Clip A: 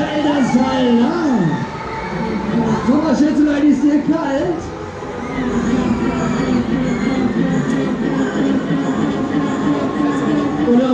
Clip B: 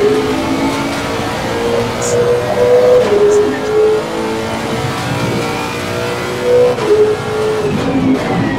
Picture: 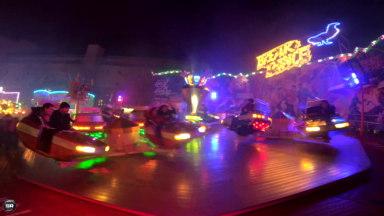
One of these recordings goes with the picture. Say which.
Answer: A